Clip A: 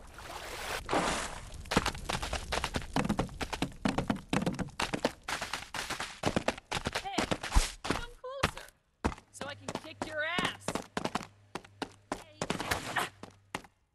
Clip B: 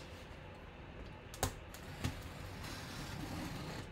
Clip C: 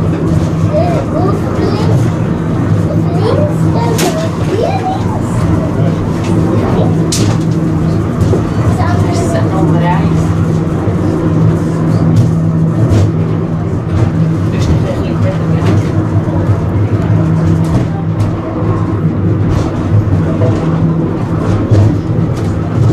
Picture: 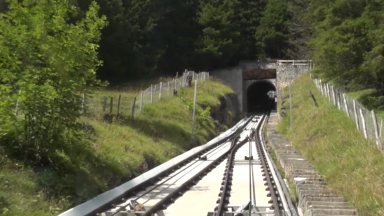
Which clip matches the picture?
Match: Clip C